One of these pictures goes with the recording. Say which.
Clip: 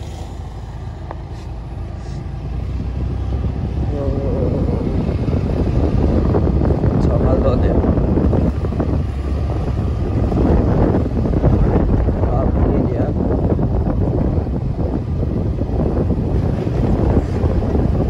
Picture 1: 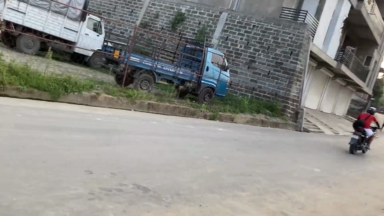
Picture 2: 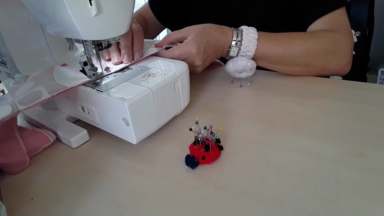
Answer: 1